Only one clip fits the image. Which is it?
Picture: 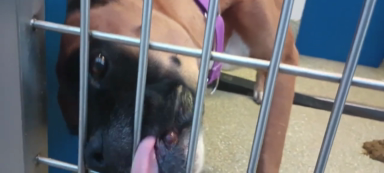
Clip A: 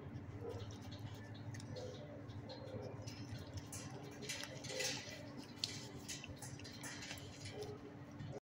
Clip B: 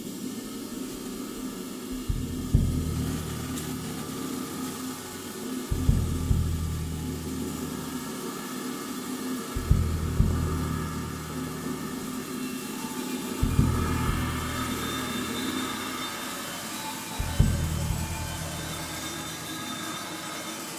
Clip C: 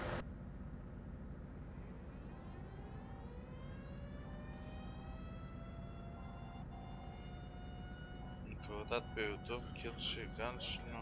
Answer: A